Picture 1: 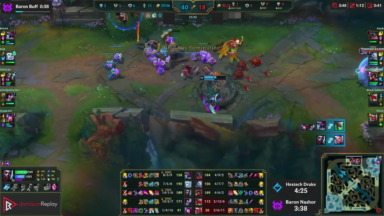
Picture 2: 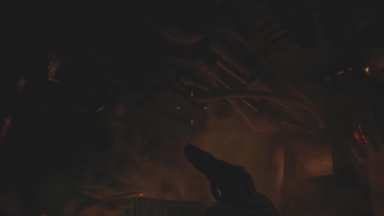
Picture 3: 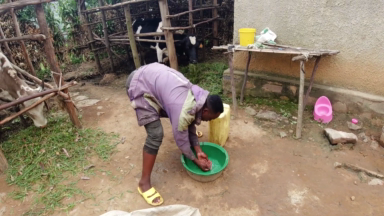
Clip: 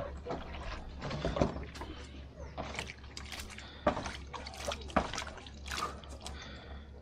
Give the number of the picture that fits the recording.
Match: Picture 3